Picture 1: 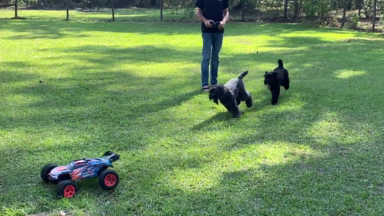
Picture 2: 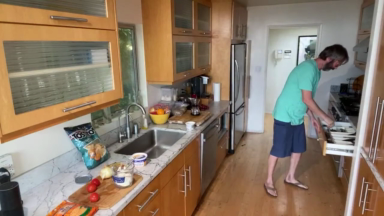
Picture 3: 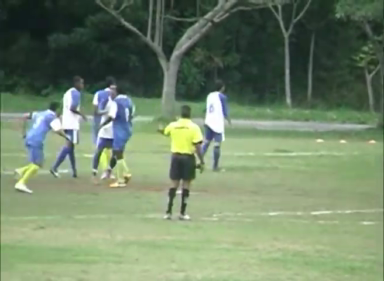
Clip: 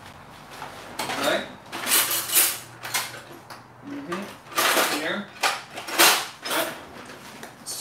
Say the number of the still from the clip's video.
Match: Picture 2